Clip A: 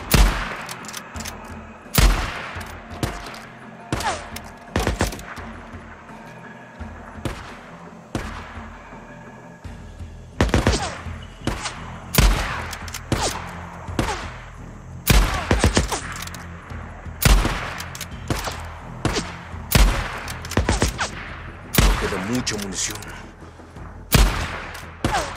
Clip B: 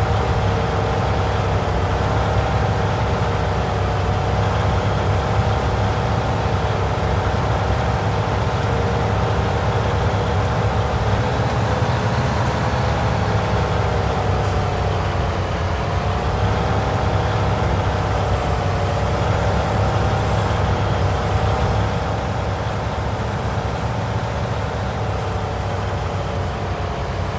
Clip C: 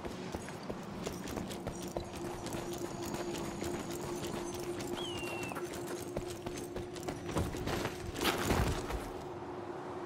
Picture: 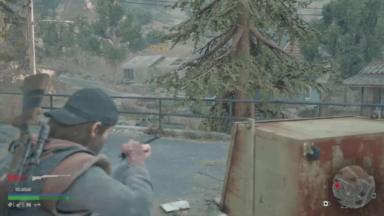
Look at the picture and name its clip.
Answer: A